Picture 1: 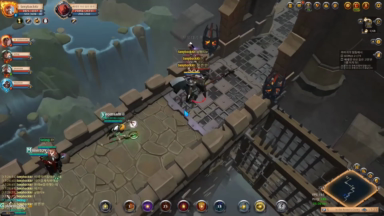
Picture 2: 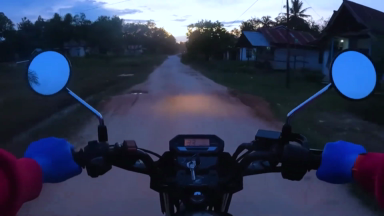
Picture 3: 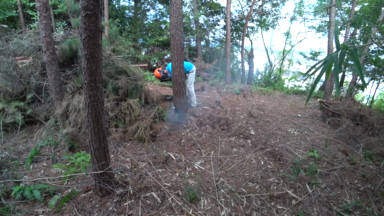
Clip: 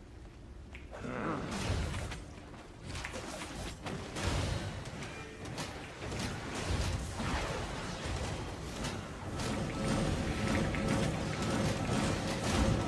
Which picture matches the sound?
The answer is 1